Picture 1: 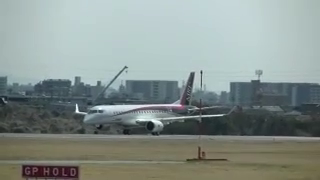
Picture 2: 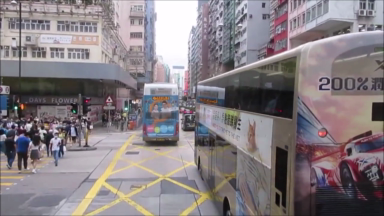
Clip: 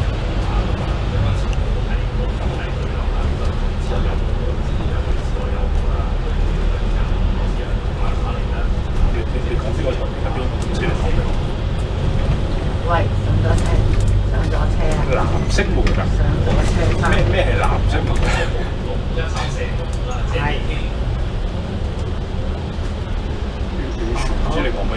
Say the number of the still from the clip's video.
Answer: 2